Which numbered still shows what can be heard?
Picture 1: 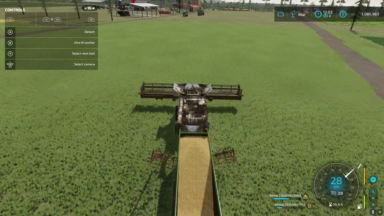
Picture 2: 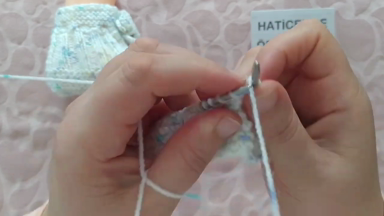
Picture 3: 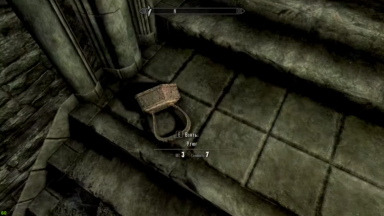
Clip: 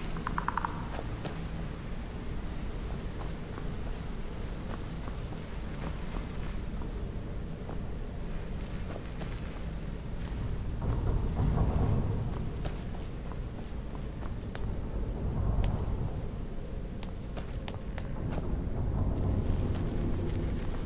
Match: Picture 3